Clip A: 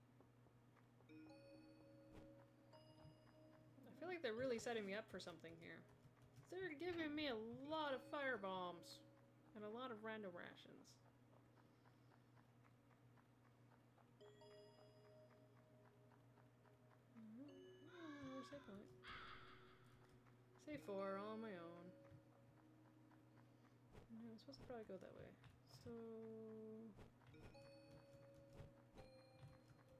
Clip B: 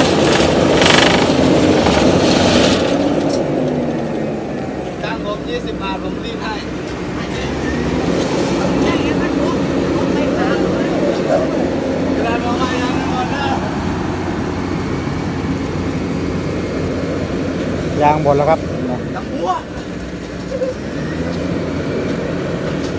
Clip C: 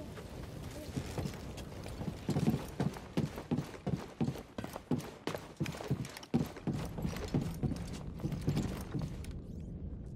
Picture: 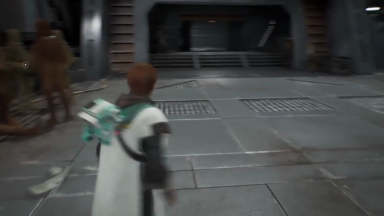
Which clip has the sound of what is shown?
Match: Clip C